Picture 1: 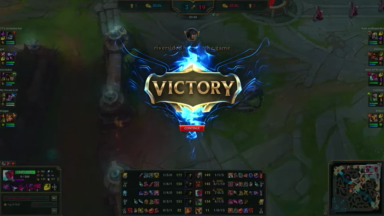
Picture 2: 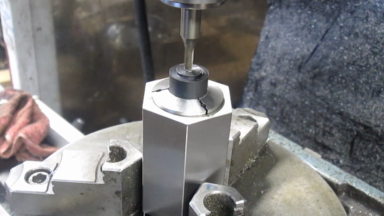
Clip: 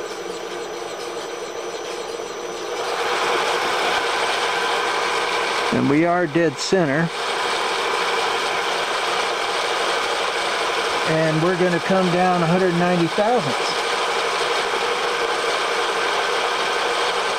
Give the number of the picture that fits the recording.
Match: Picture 2